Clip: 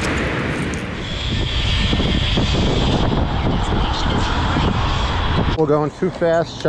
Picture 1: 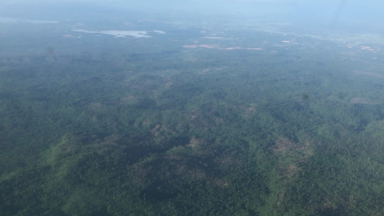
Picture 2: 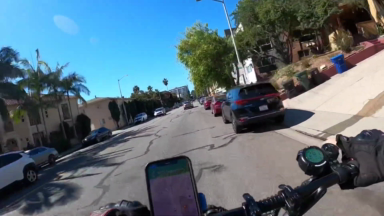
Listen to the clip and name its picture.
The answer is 2